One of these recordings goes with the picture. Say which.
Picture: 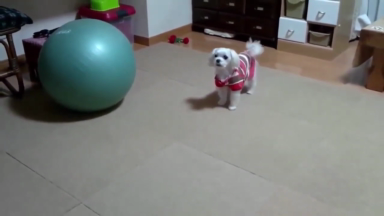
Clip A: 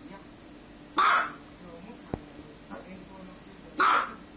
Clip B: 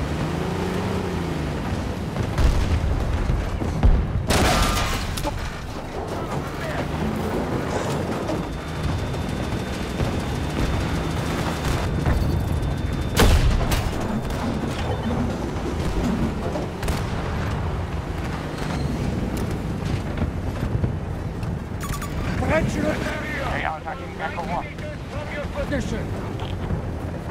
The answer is A